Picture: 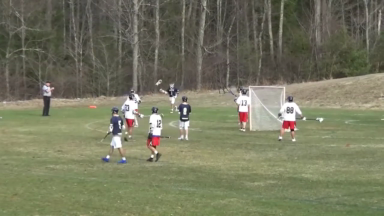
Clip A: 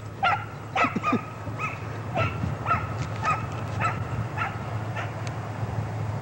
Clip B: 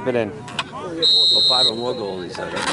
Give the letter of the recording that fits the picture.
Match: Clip B